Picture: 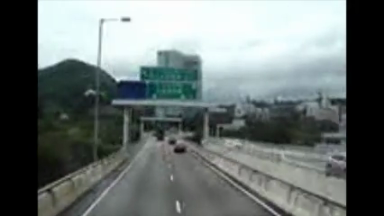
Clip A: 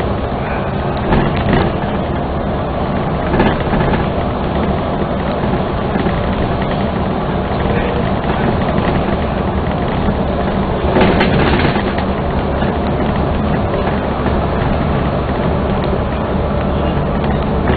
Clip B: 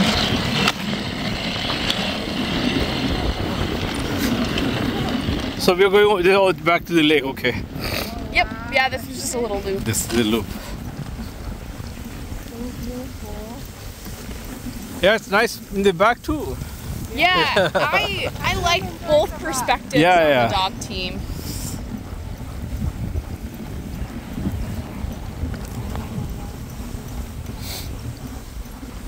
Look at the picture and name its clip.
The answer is A